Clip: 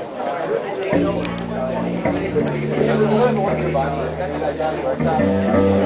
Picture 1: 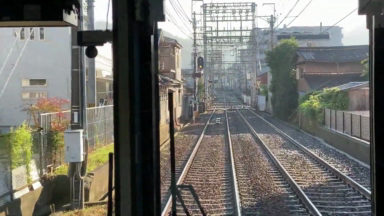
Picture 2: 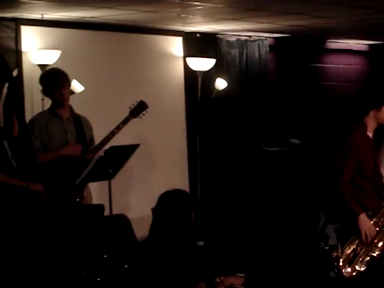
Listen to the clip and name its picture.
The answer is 2